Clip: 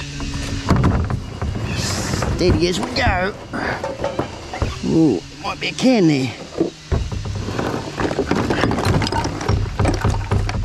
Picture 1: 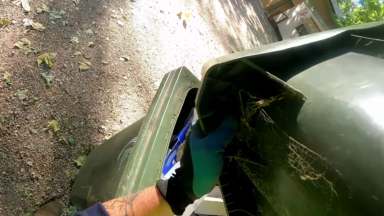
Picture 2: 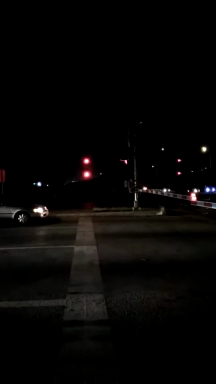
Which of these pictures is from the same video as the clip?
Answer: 1